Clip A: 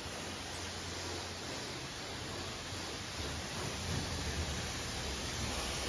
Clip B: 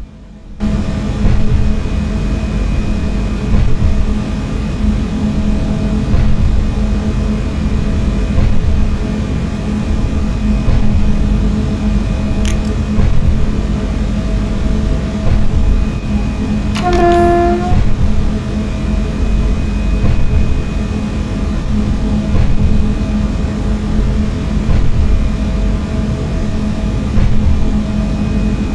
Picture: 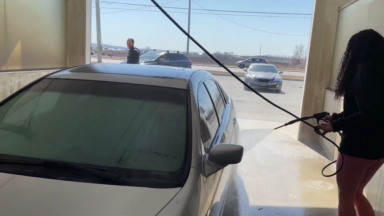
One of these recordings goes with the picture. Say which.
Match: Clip A